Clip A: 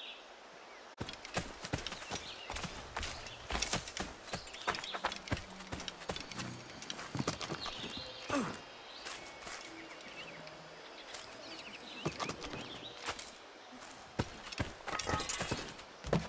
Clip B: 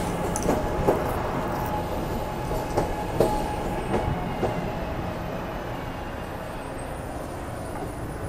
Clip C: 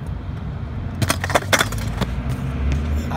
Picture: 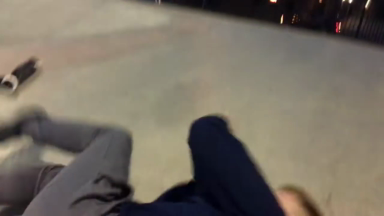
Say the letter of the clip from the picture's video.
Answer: C